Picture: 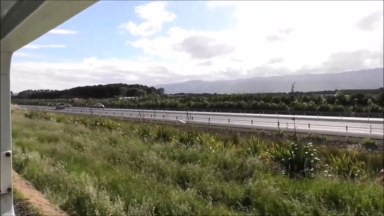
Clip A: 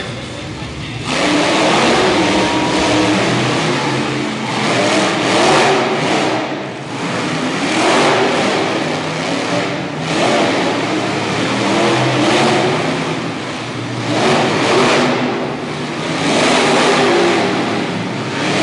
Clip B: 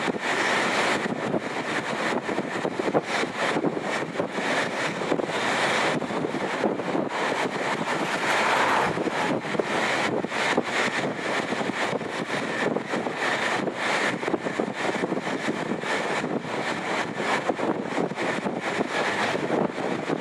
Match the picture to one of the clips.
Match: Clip B